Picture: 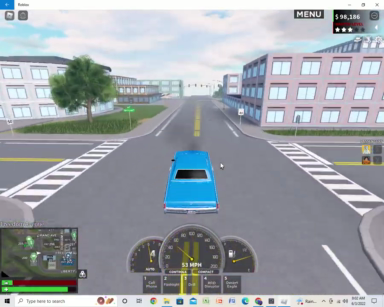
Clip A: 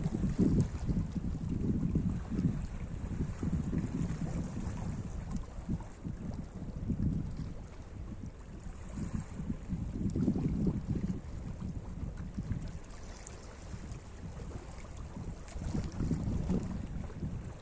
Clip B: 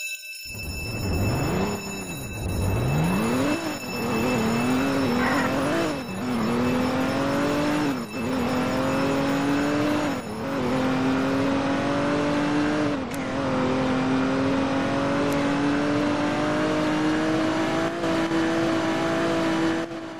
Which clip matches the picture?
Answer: B